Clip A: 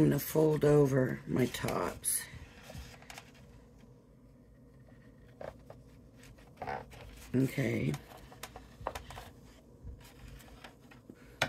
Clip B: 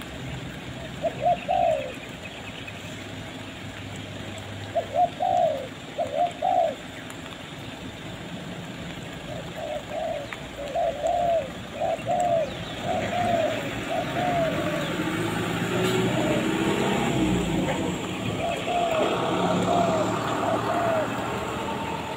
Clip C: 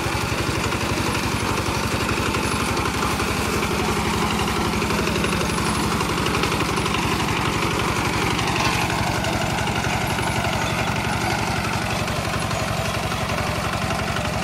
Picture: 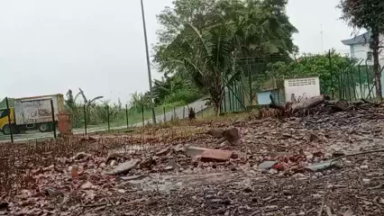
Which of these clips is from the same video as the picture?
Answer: B